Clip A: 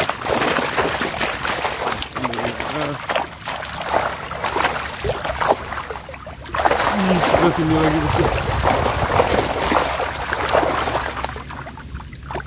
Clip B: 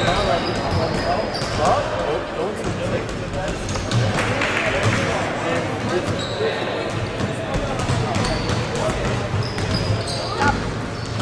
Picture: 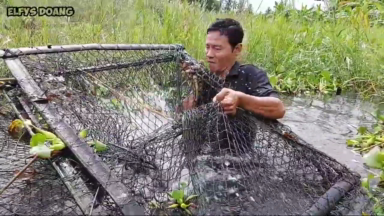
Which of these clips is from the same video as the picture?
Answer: A